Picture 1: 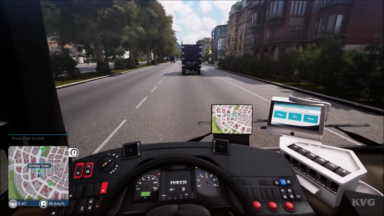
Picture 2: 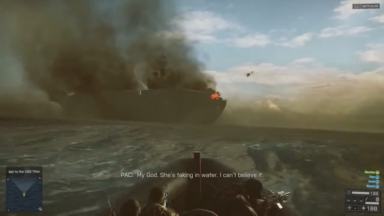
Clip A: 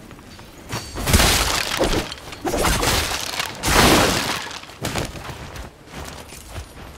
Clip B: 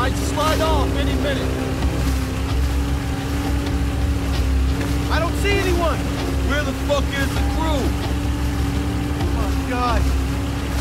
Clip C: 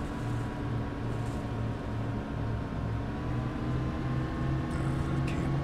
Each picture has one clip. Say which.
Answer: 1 C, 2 B